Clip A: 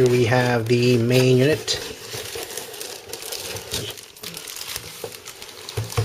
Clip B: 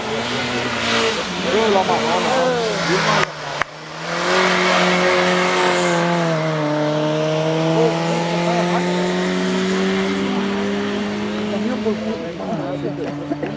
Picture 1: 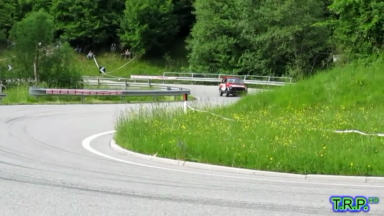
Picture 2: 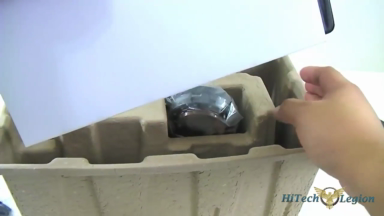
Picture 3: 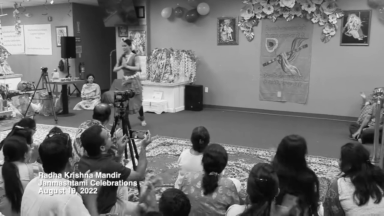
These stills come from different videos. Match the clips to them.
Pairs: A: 2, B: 1